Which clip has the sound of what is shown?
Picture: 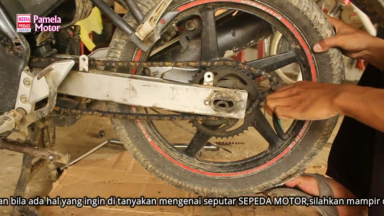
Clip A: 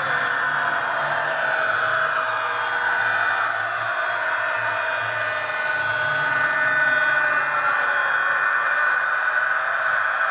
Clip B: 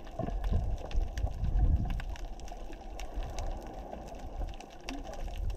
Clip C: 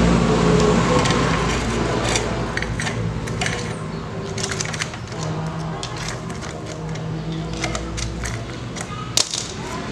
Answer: C